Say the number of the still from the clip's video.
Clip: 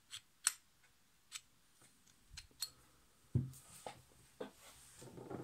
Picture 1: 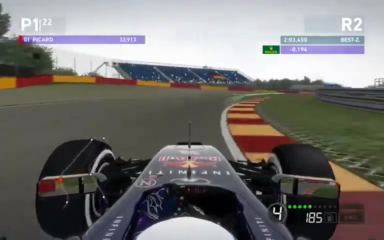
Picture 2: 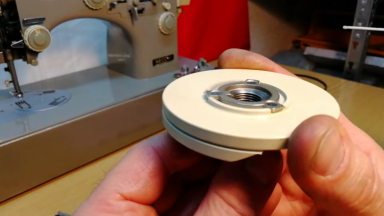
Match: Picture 2